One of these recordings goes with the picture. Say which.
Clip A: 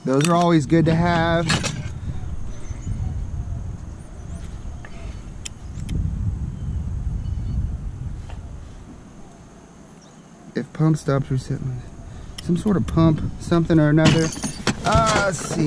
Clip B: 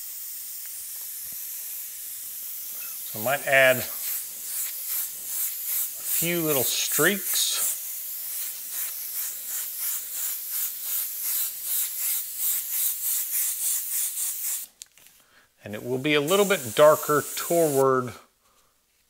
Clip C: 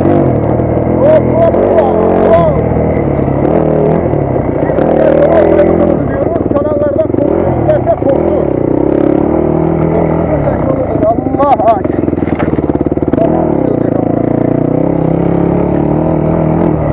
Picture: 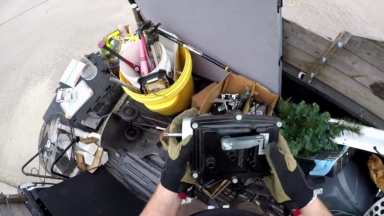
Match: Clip A